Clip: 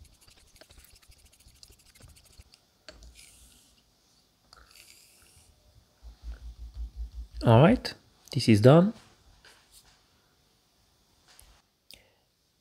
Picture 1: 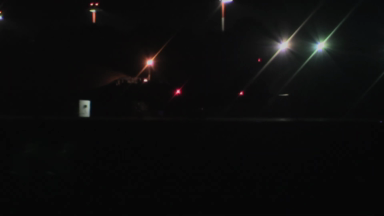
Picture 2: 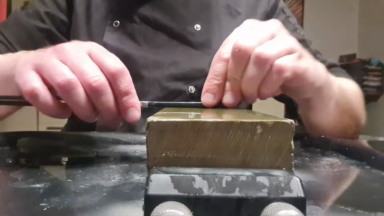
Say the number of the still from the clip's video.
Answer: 2